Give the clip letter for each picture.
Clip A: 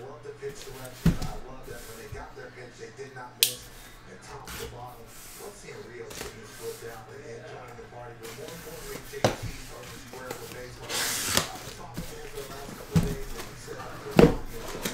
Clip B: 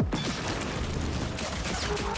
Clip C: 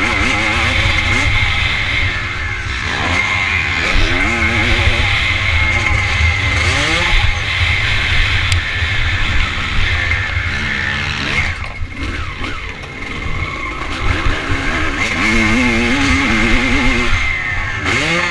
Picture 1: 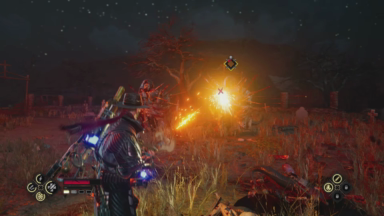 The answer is B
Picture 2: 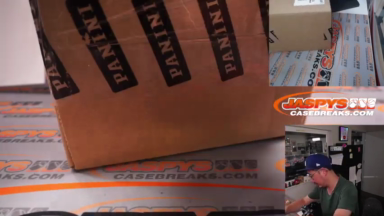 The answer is A